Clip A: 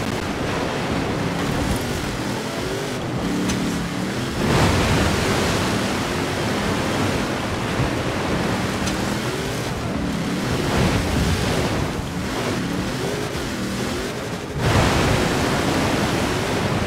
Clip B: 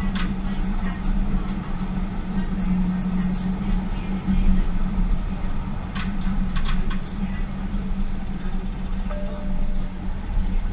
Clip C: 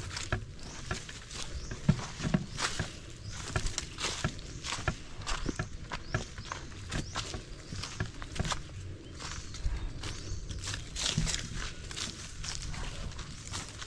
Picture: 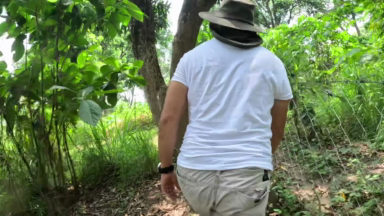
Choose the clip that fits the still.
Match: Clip C